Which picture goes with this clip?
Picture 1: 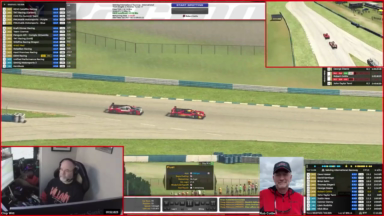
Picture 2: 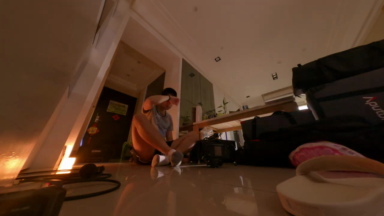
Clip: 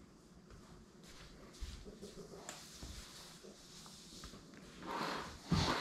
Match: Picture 2